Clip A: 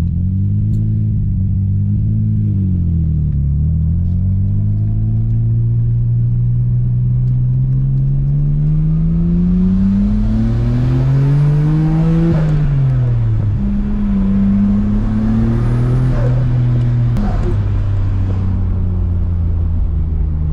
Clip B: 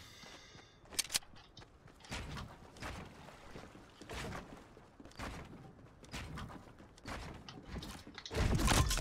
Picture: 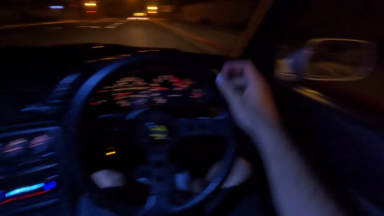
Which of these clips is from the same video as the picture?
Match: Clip A